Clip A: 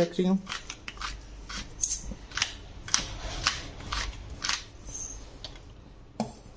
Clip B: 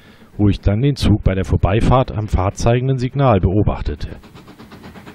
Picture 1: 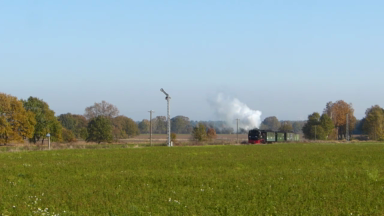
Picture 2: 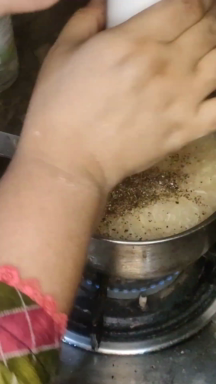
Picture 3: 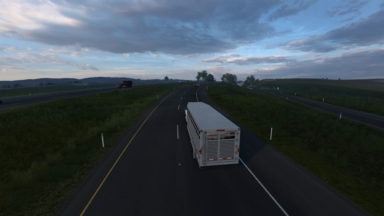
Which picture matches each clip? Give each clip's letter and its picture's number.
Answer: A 2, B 1